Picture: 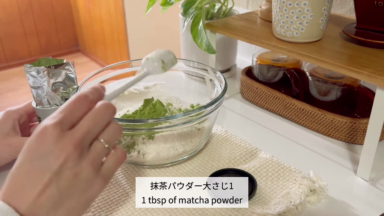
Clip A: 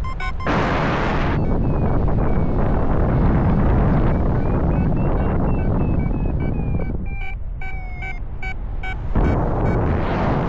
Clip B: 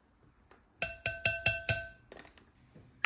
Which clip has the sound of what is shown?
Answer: B